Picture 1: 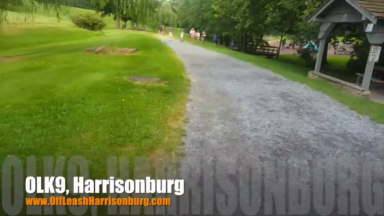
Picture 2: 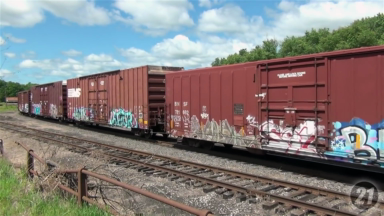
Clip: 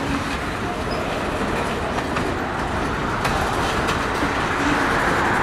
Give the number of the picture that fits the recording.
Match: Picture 2